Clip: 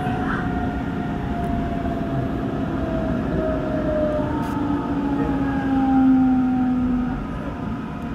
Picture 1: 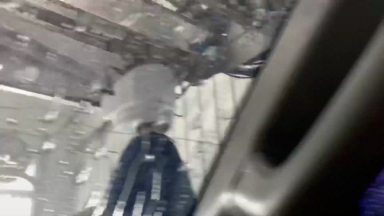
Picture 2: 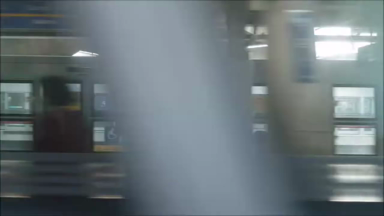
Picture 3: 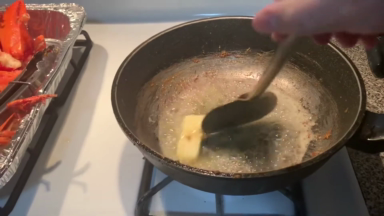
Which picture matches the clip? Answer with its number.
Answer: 2